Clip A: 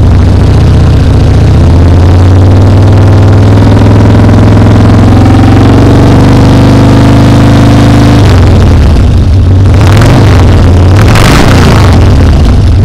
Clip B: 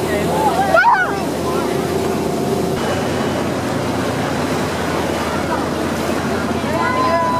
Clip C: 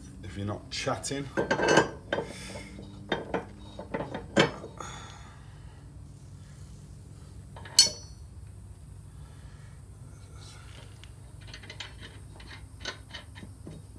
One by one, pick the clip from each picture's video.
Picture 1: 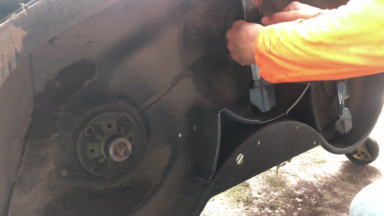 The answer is C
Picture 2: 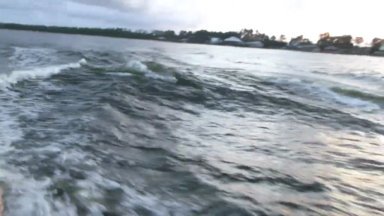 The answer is B